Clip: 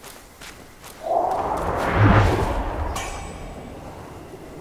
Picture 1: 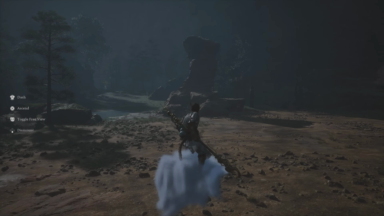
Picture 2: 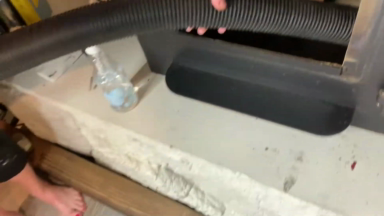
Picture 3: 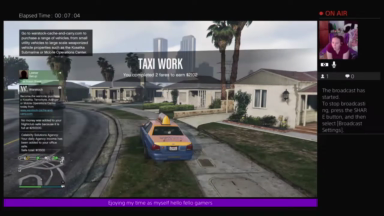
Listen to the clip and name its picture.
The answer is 1